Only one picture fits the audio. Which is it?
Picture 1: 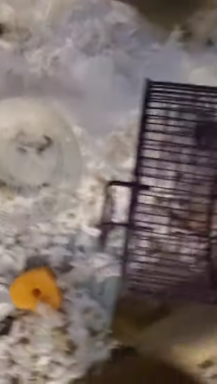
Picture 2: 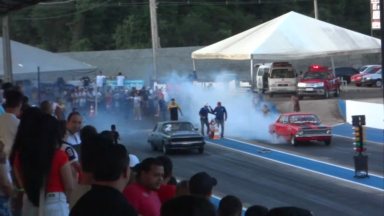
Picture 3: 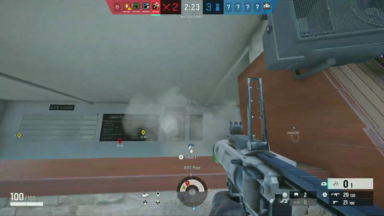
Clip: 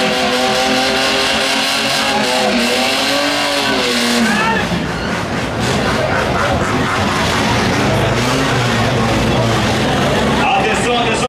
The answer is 2